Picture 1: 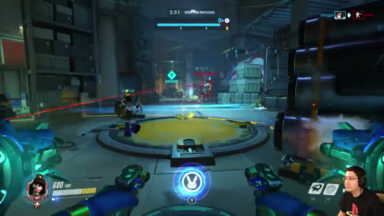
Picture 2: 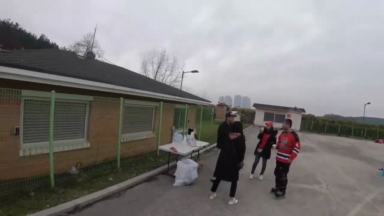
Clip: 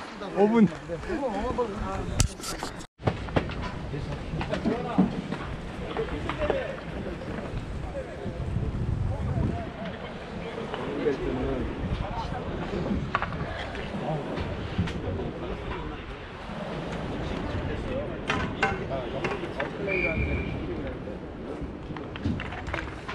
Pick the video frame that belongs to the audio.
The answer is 2